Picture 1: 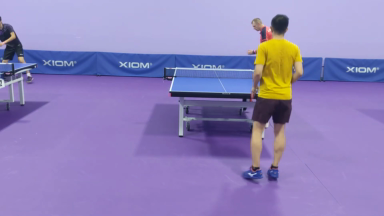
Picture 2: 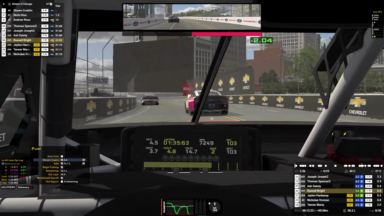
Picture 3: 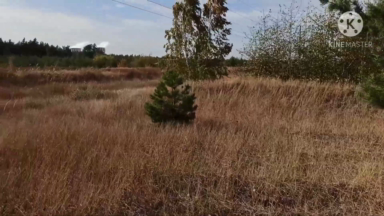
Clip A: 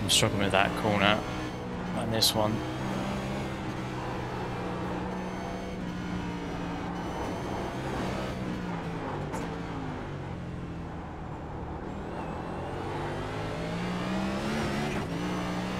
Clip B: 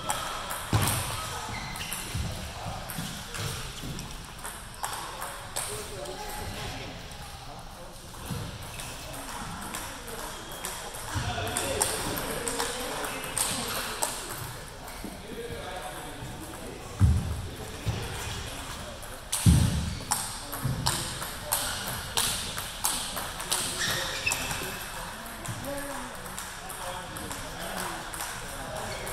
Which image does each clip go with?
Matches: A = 2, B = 1